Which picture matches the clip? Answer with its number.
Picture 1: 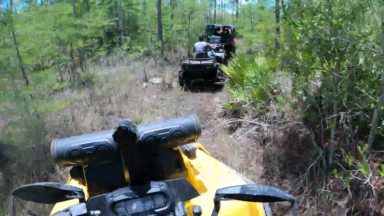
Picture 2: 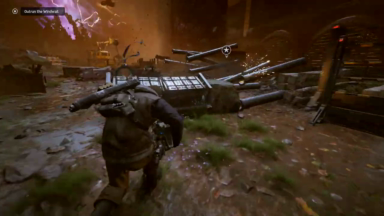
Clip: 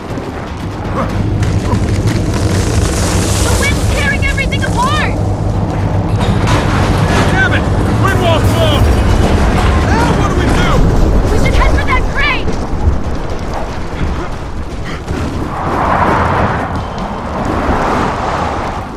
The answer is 2